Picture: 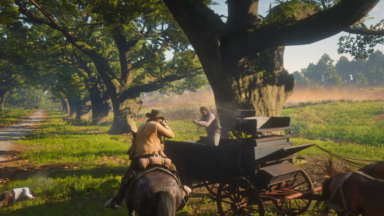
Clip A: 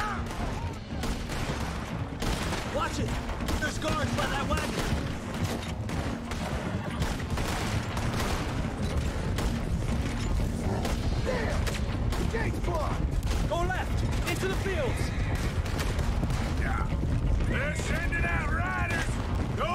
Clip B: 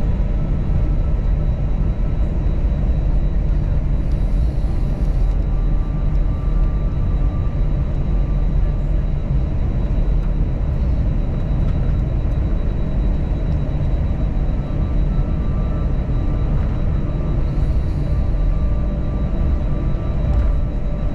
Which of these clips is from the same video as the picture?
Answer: A